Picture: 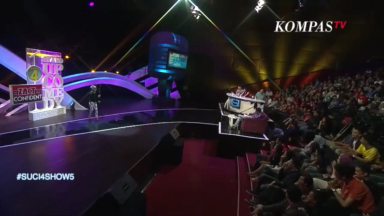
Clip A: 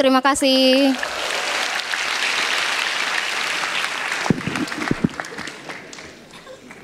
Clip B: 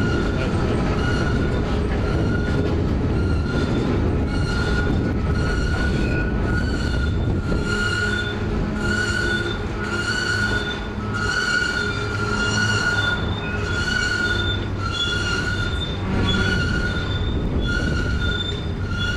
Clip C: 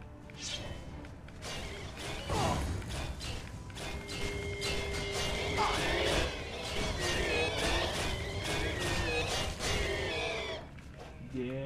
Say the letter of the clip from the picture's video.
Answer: A